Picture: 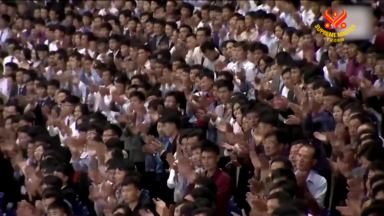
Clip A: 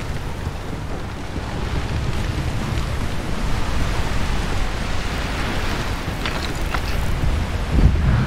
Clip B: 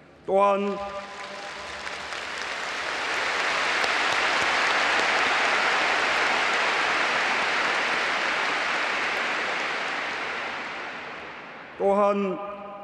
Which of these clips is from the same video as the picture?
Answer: B